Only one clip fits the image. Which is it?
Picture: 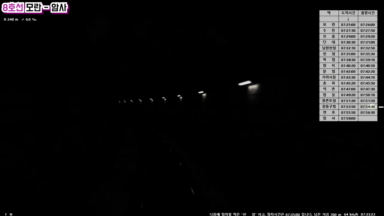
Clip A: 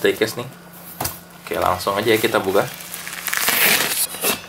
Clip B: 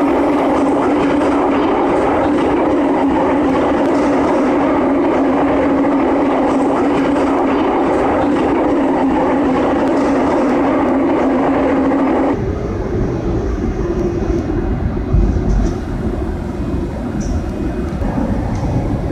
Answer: B